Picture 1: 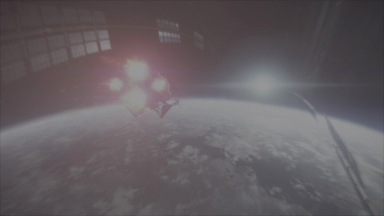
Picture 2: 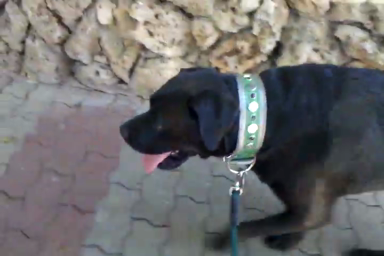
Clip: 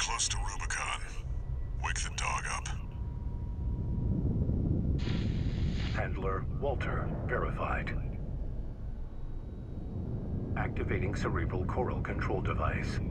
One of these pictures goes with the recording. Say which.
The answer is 1